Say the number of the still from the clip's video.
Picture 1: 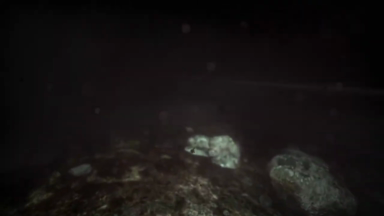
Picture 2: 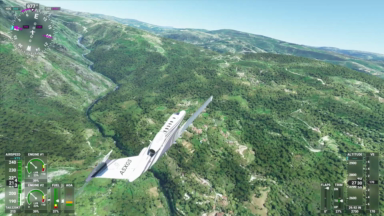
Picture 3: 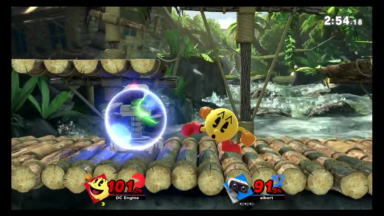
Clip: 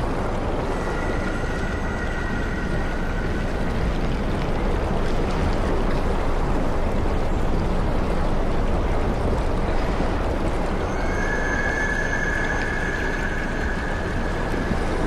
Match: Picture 1